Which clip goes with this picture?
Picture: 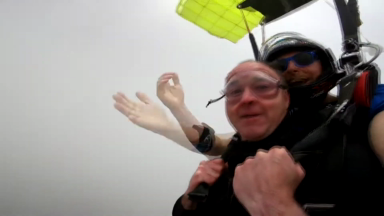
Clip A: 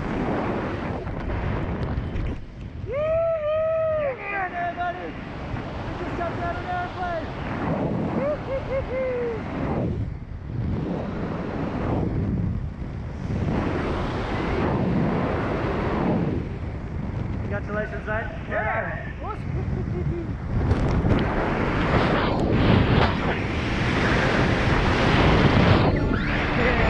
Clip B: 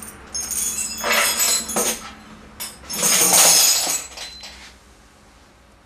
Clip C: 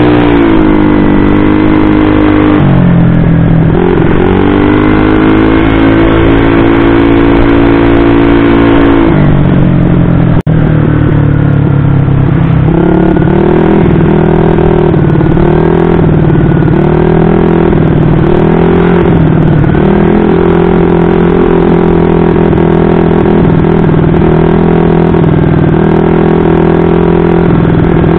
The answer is A